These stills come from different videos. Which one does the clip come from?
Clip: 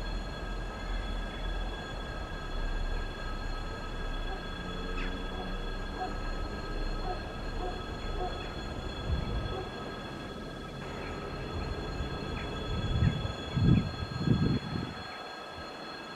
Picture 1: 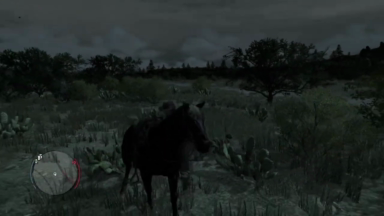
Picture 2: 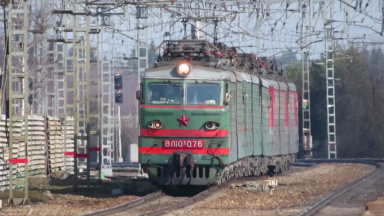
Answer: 2